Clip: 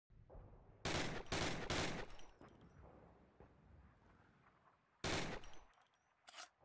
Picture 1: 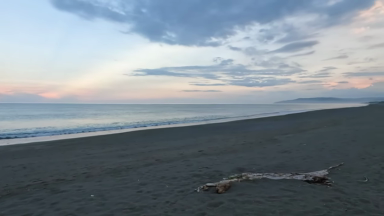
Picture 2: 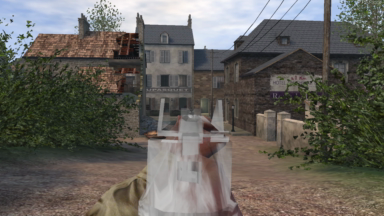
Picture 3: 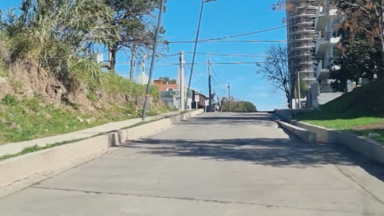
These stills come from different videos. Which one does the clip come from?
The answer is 2